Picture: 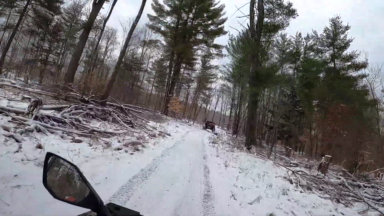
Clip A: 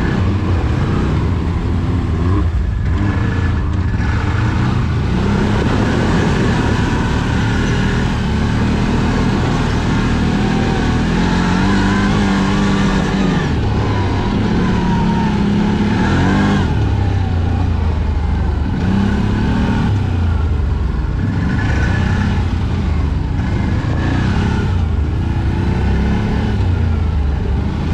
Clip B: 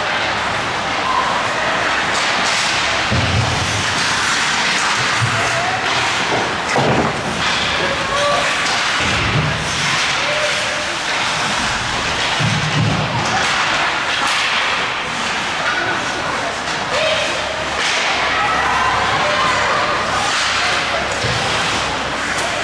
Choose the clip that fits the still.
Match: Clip A